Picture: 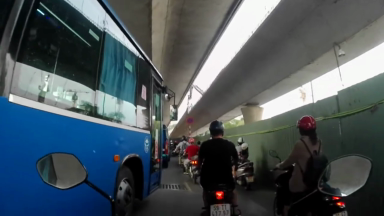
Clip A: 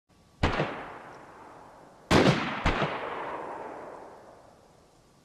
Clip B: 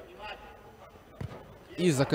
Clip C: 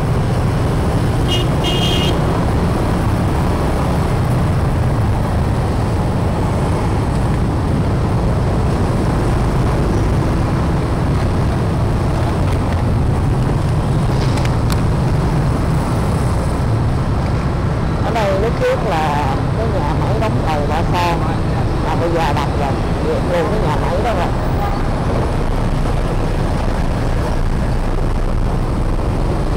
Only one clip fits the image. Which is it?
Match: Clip C